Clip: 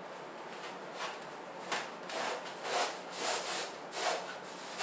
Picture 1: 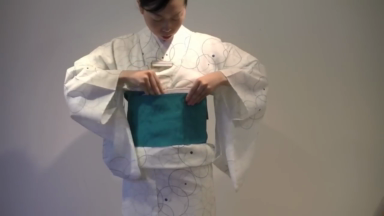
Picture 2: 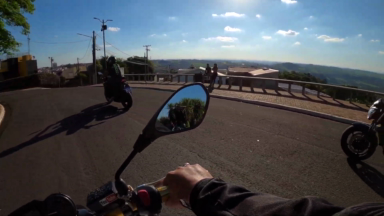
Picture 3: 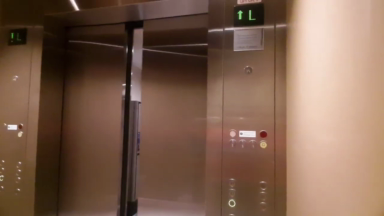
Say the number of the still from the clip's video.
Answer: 1